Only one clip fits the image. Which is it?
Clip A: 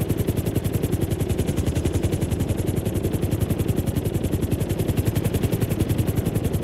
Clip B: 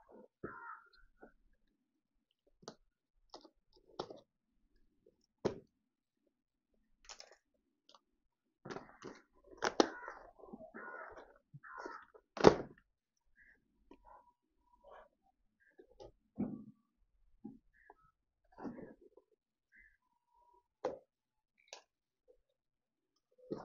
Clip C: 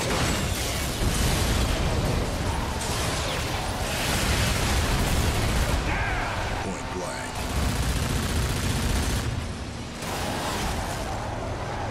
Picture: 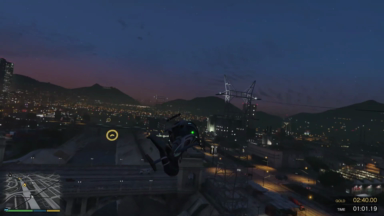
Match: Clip A